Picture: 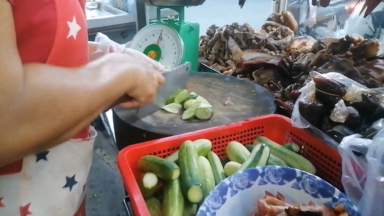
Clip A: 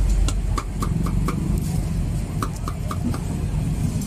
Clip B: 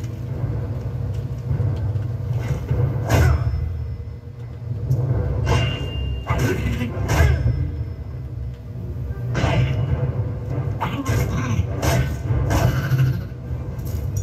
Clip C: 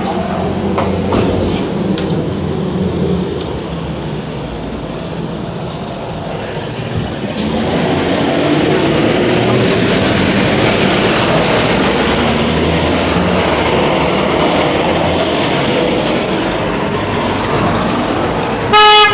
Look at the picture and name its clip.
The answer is A